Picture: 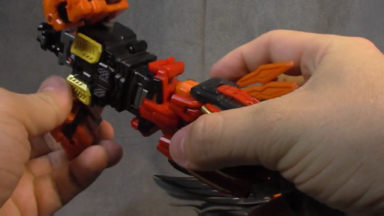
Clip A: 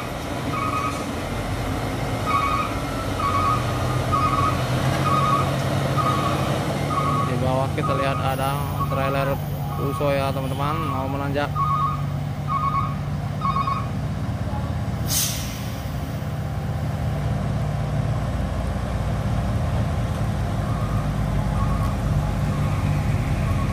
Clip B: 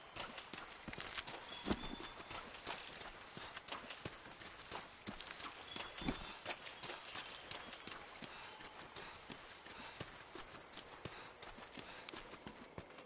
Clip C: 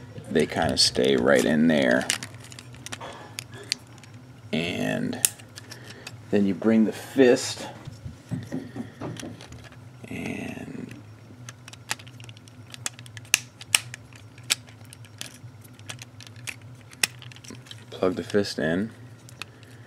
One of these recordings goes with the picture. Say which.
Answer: C